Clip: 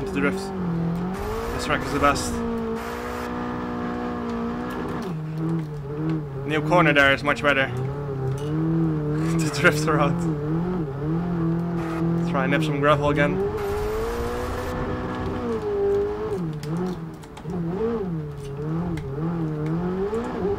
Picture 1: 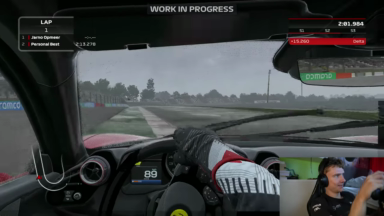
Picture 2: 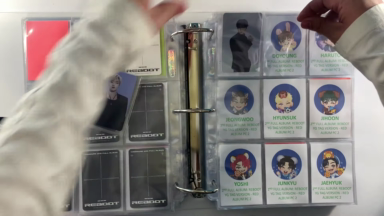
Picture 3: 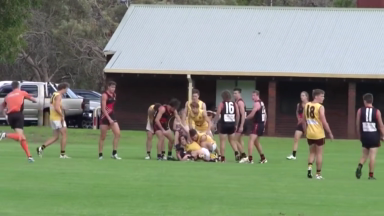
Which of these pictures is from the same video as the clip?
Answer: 1